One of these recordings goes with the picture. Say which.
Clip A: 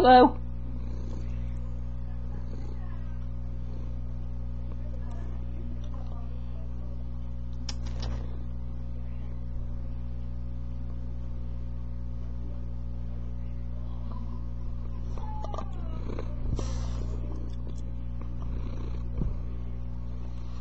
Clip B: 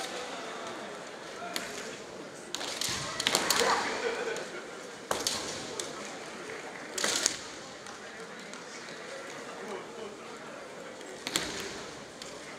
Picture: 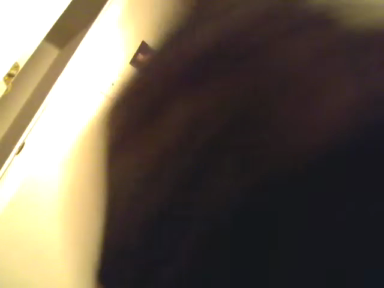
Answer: A